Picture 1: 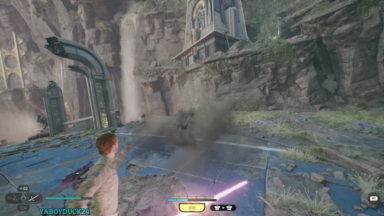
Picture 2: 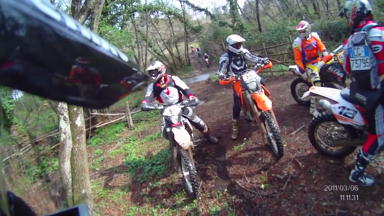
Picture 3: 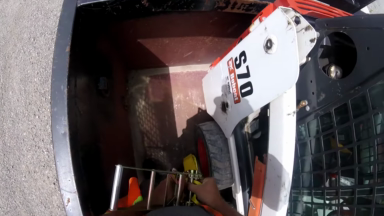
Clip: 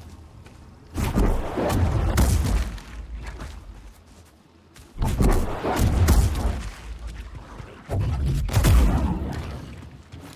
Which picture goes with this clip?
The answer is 1